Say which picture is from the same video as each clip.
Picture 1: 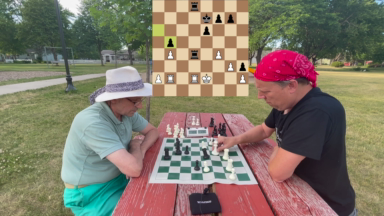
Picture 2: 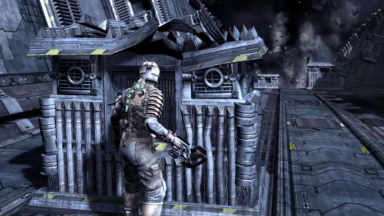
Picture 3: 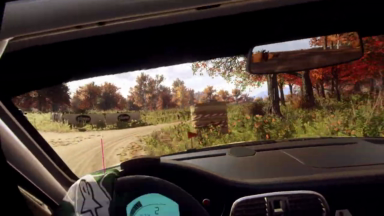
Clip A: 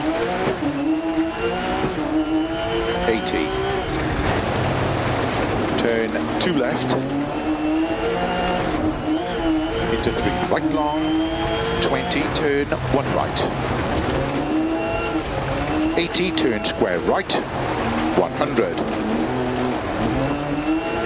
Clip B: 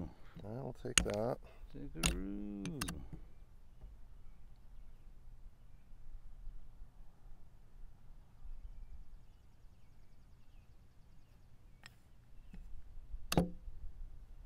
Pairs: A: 3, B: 1